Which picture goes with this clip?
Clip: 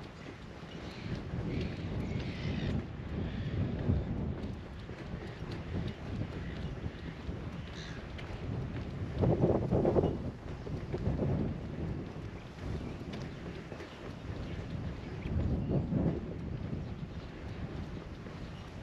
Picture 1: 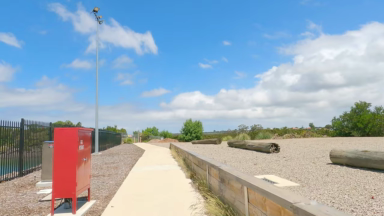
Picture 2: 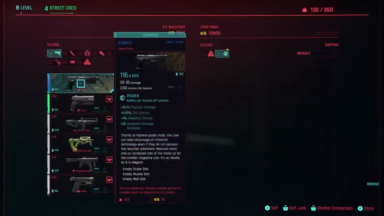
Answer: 1